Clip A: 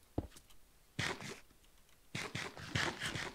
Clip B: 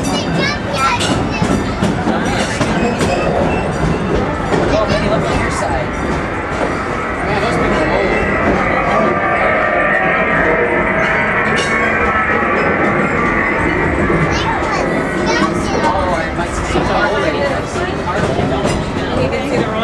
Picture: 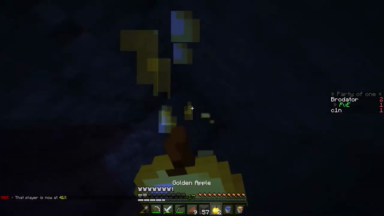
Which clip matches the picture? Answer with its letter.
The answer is A